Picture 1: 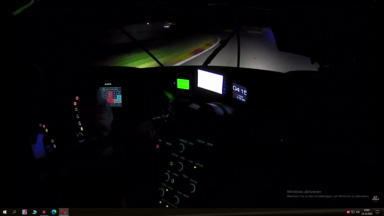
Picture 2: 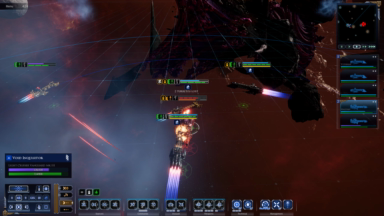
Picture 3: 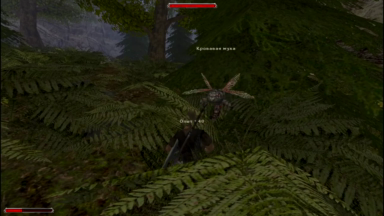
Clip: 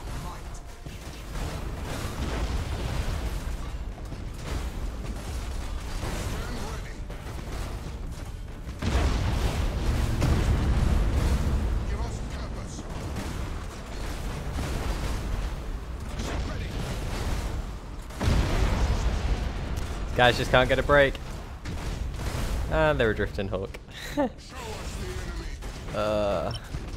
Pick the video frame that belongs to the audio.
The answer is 2